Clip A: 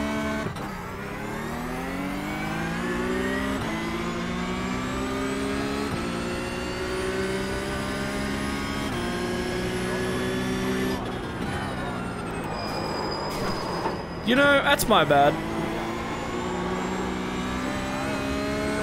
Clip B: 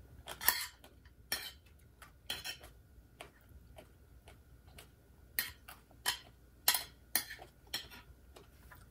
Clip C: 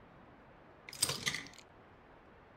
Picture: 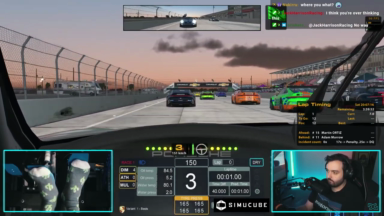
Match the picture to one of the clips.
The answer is A